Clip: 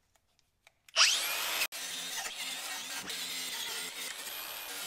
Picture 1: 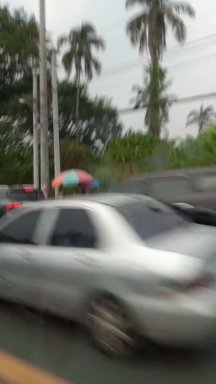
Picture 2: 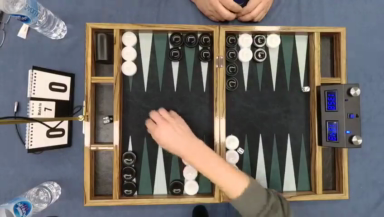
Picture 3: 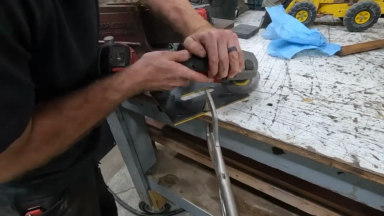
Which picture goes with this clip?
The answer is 3